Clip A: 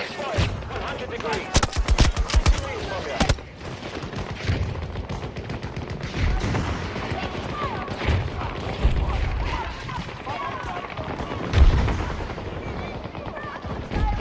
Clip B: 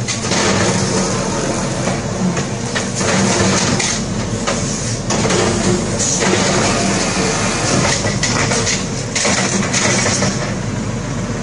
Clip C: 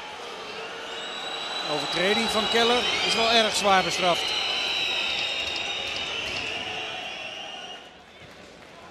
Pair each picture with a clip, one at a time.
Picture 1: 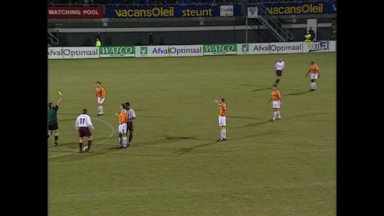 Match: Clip C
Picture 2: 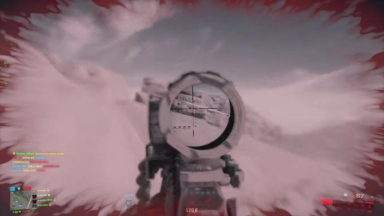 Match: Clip A